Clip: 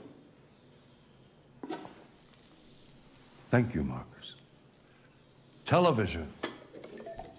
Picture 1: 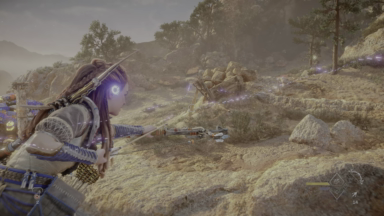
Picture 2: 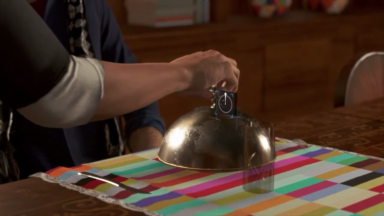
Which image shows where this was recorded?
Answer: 2